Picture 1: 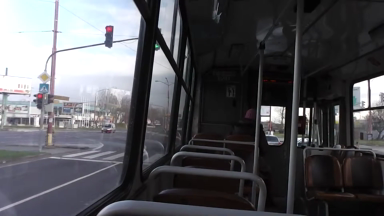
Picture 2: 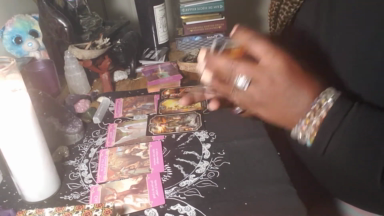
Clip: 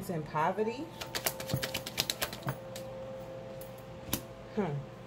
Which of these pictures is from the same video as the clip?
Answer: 2